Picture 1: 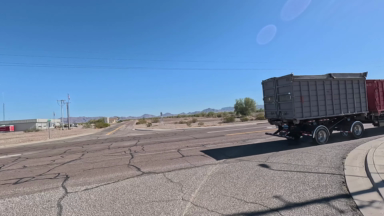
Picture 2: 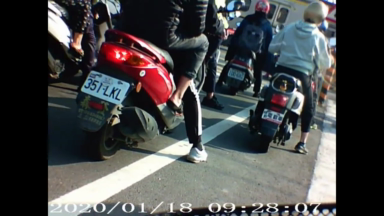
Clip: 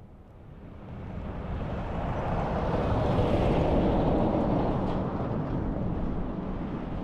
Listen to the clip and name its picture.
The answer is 1